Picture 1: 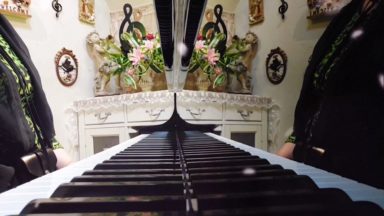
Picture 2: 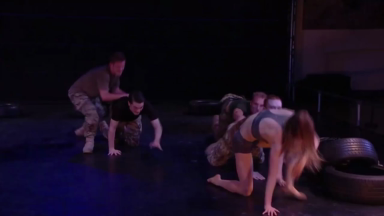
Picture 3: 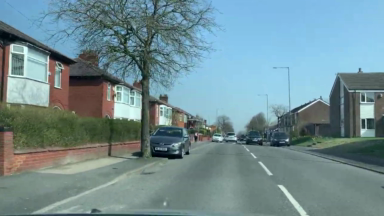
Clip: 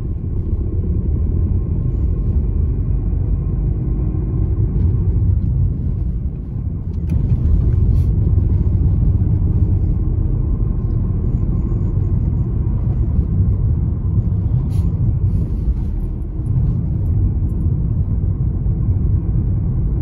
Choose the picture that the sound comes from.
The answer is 3